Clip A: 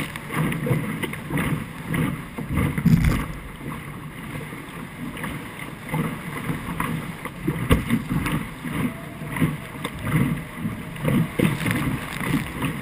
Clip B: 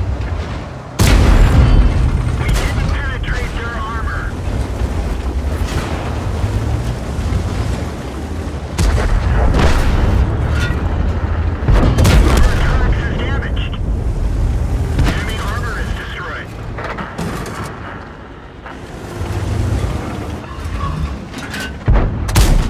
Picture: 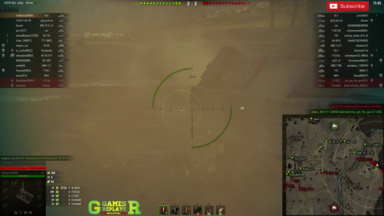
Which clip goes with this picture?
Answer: B